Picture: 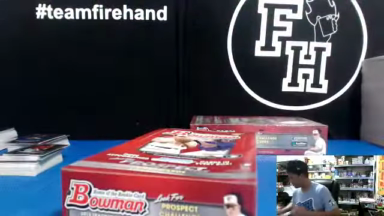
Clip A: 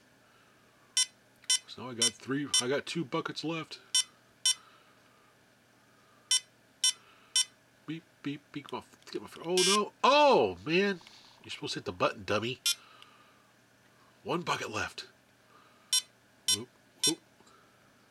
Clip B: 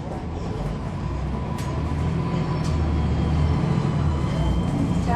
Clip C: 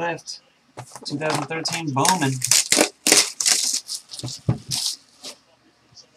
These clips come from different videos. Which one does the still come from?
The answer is C